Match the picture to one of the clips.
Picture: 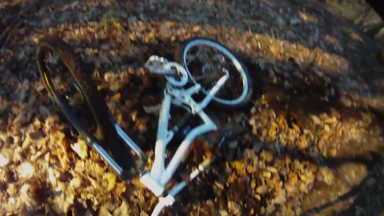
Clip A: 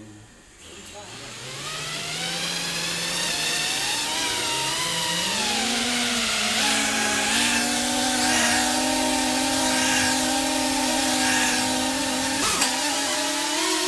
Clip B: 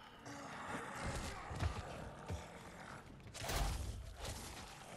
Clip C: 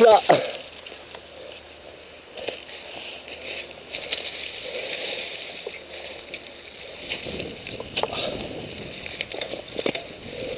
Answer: C